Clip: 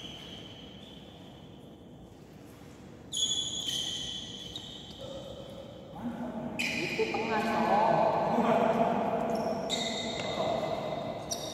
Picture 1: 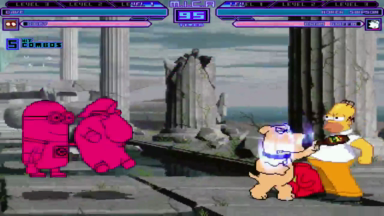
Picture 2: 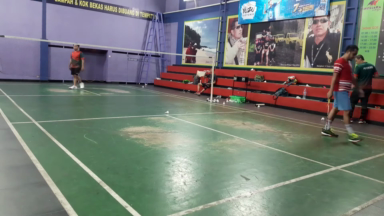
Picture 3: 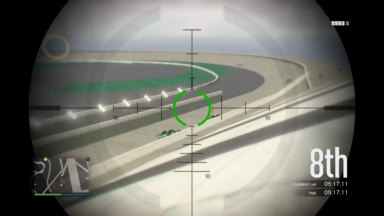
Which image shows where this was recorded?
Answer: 2